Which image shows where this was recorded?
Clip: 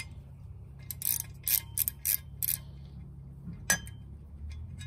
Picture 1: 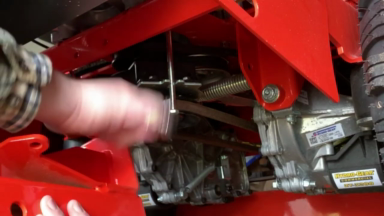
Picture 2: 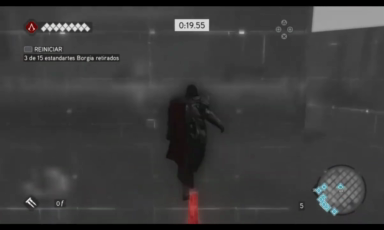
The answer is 1